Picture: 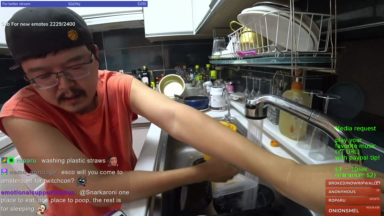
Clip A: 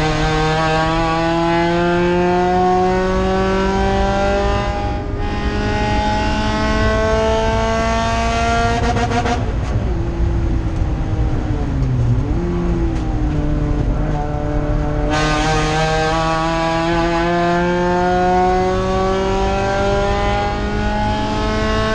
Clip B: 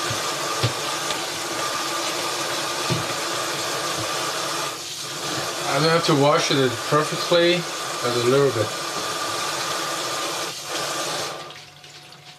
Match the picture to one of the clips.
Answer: B